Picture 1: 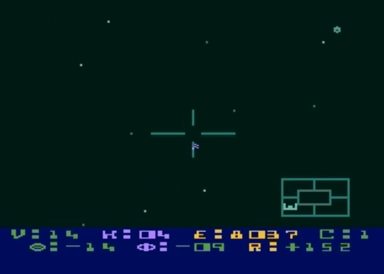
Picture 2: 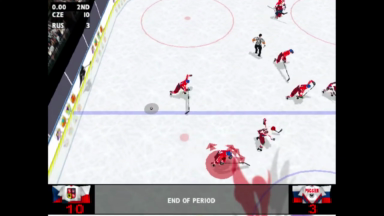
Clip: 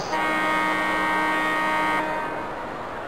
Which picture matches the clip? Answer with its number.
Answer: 2